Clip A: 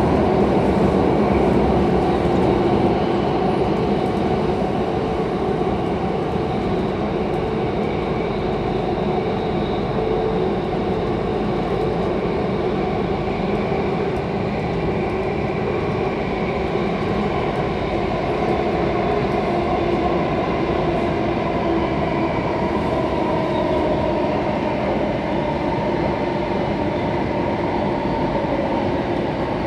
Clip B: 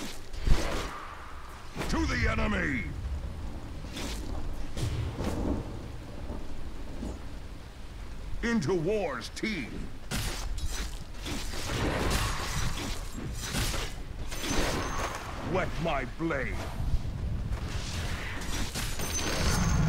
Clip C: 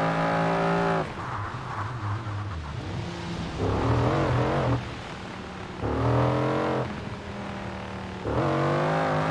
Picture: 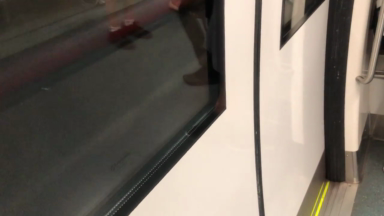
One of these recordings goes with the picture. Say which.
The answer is A